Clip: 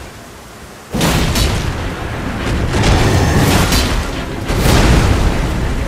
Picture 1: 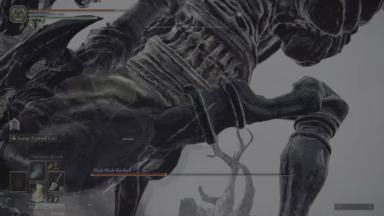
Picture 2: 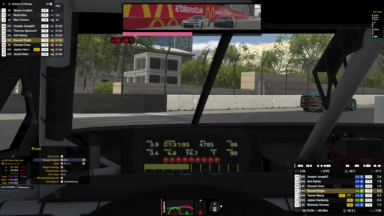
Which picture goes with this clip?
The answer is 1